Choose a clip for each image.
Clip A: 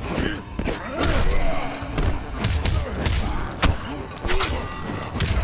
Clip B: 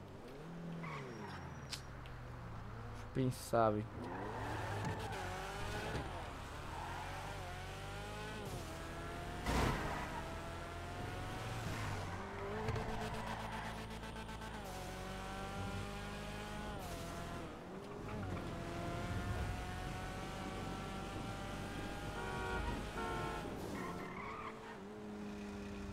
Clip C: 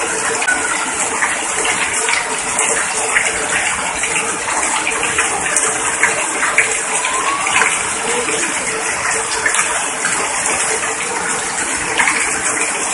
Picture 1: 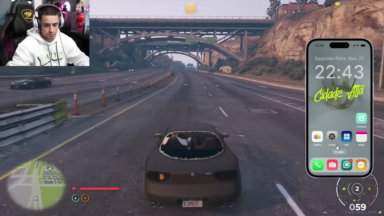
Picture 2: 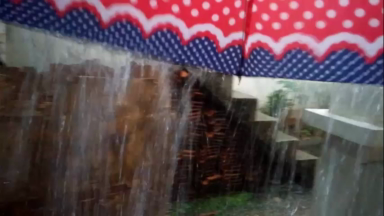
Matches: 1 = B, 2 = C